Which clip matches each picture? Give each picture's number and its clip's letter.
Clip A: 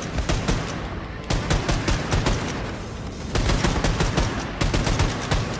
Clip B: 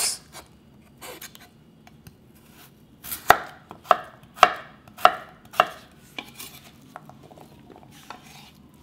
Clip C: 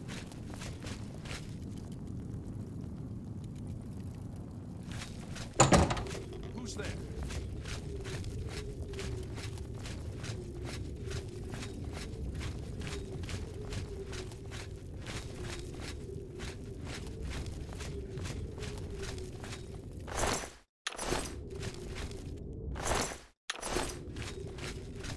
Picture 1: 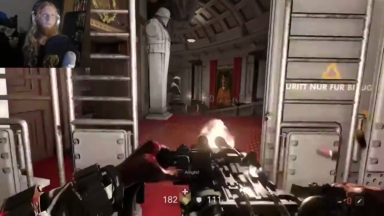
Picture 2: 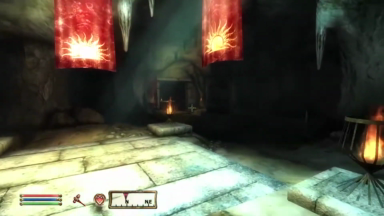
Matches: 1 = A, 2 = C